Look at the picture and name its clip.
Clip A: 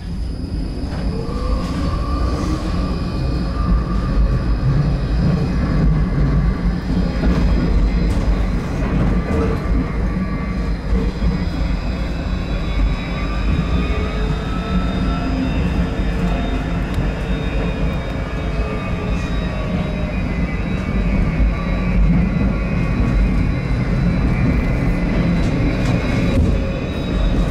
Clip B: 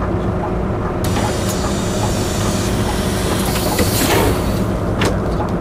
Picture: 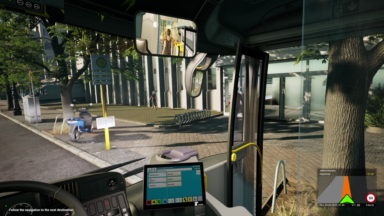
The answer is B